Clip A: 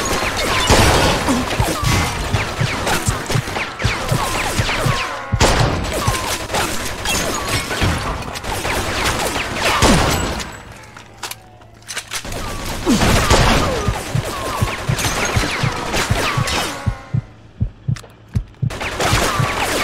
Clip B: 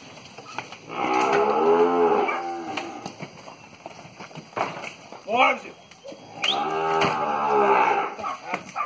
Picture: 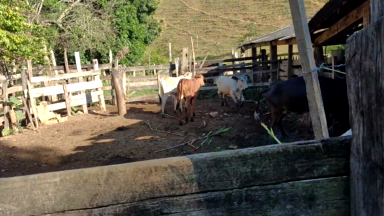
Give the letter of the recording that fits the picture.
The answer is B